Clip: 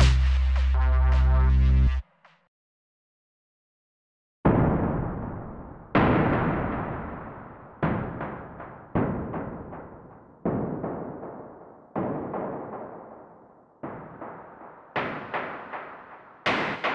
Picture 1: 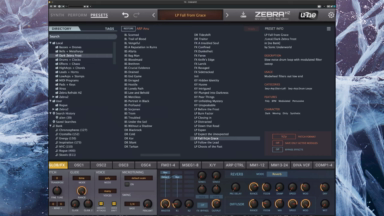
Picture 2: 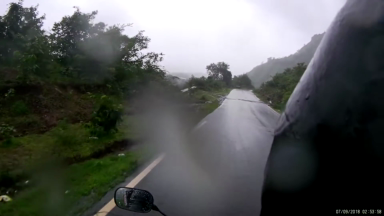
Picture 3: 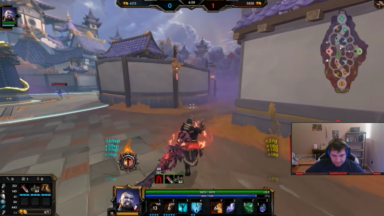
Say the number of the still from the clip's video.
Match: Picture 1